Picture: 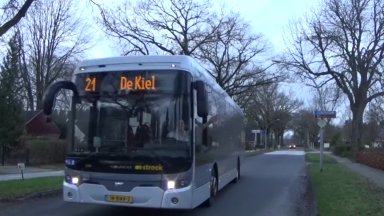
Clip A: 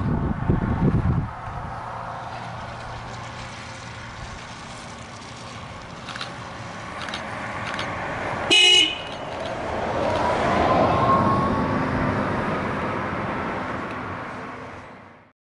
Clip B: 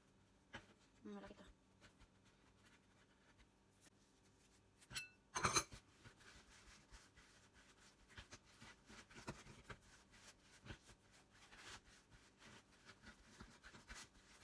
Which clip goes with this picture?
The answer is A